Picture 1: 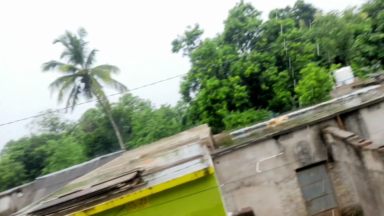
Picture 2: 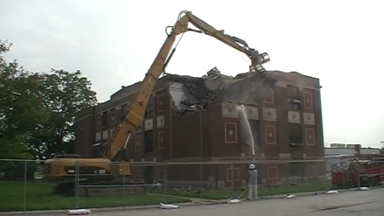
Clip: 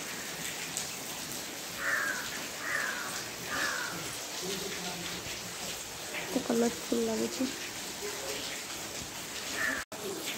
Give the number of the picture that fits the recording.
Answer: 1